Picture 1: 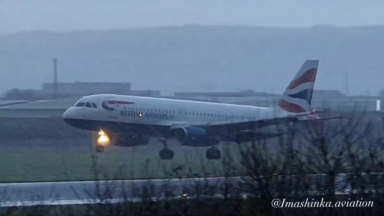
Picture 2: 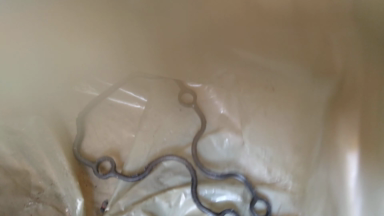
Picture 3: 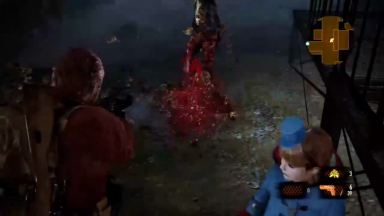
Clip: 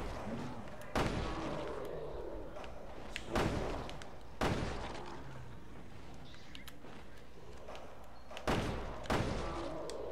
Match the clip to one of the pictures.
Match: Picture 3